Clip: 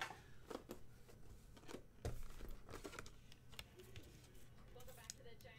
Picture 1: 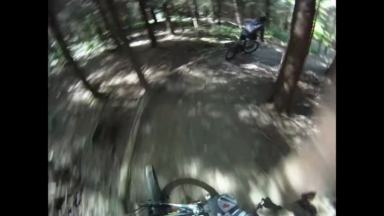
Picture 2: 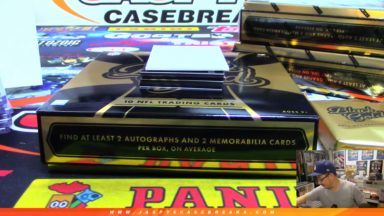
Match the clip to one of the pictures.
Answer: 2